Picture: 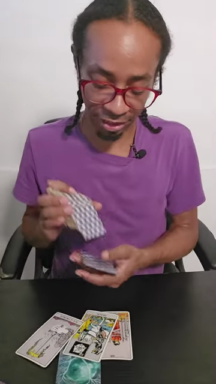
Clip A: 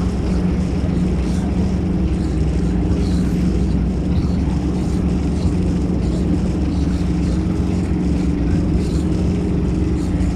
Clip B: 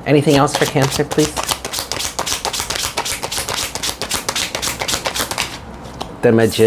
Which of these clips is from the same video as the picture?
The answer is B